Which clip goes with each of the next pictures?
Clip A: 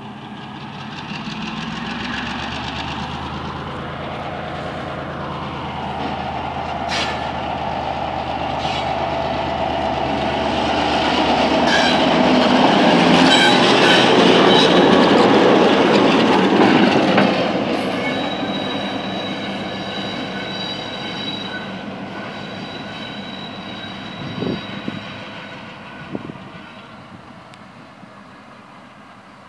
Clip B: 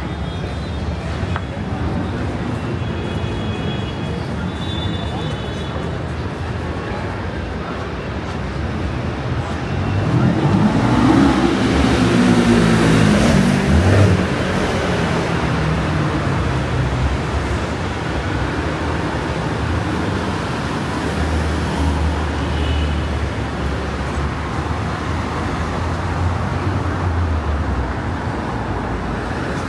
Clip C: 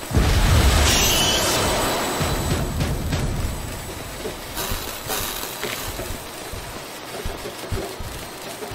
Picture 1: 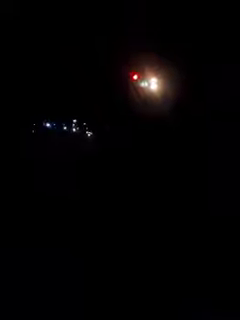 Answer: A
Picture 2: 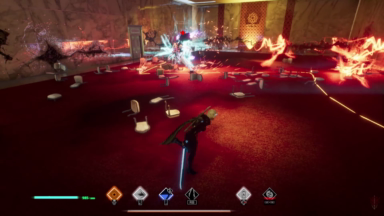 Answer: C